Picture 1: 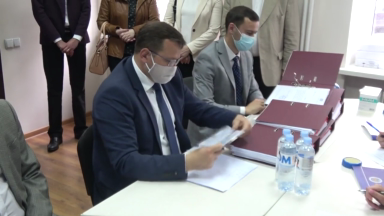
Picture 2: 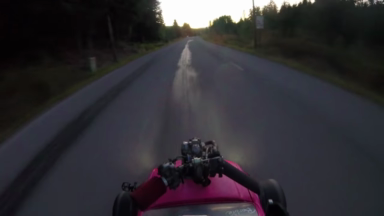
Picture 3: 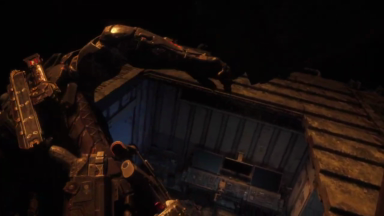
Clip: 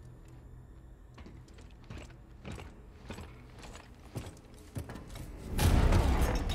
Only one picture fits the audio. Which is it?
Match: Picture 3